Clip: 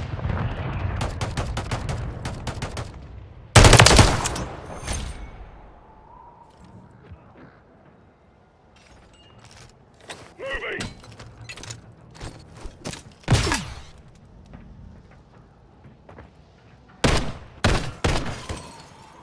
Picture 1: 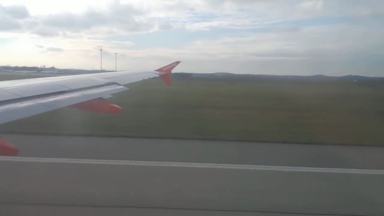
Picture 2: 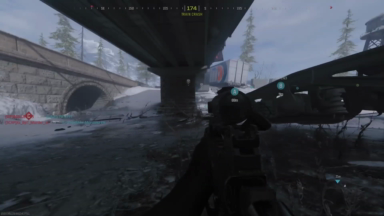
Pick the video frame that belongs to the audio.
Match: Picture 2